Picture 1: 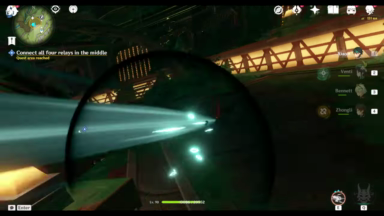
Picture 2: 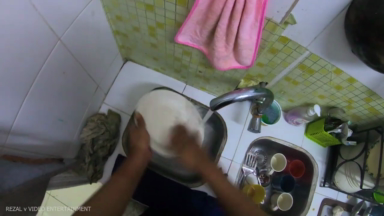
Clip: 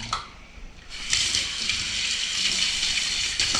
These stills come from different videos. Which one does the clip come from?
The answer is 2